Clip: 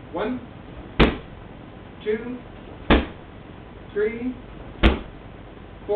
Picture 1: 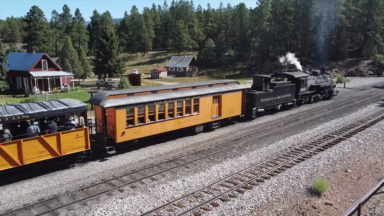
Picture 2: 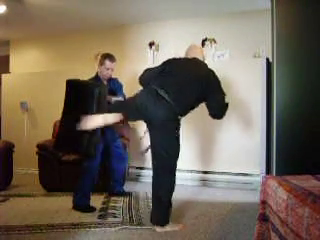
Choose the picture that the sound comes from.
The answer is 2